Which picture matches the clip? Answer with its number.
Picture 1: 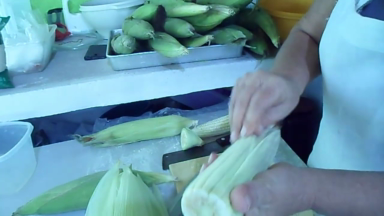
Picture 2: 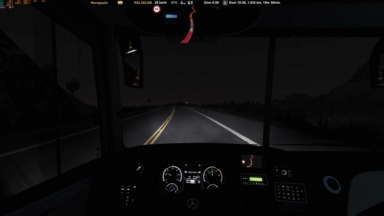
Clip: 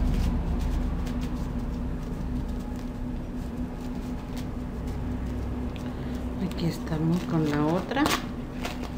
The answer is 1